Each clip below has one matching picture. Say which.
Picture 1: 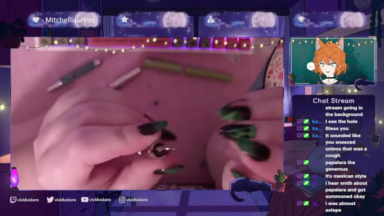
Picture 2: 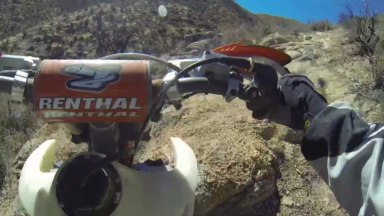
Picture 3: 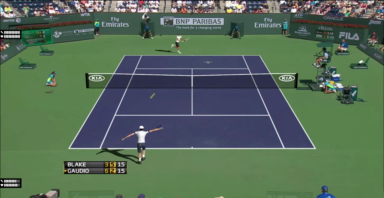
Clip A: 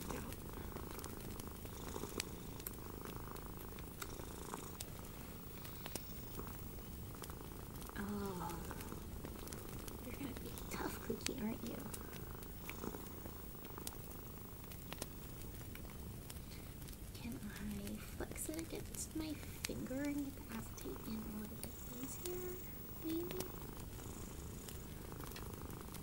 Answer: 1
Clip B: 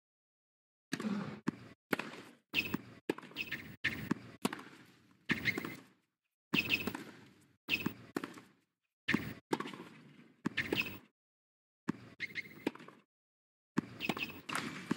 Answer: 3